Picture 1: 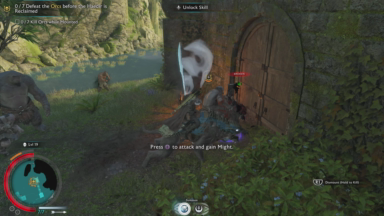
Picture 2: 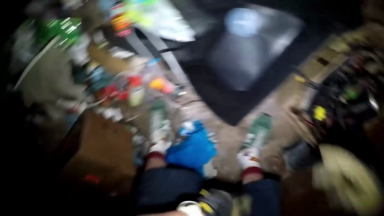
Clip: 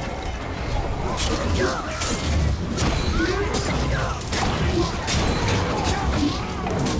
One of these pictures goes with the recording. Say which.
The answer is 1